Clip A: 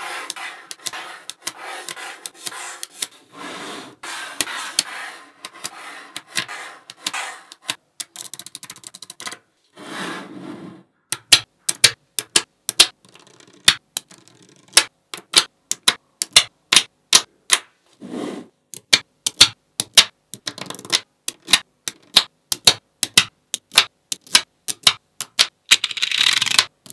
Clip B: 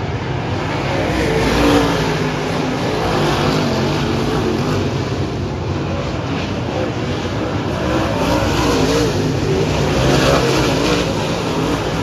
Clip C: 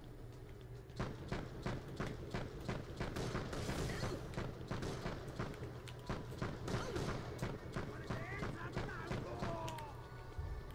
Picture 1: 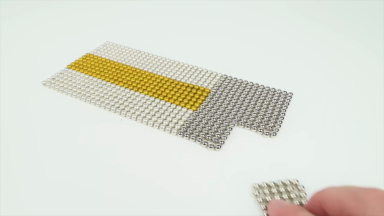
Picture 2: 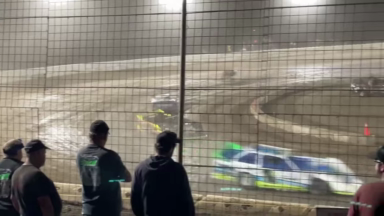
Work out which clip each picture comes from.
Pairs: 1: A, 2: B